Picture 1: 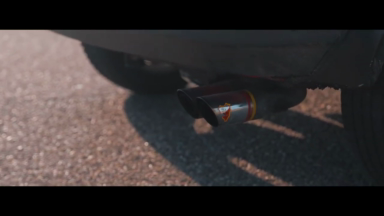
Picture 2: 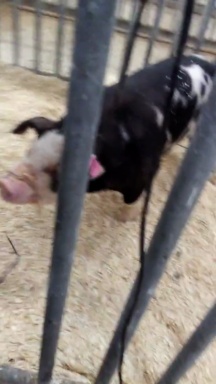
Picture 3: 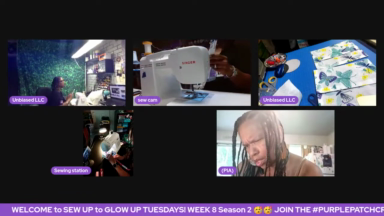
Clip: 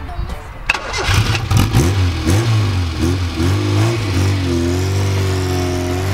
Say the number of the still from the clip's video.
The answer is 1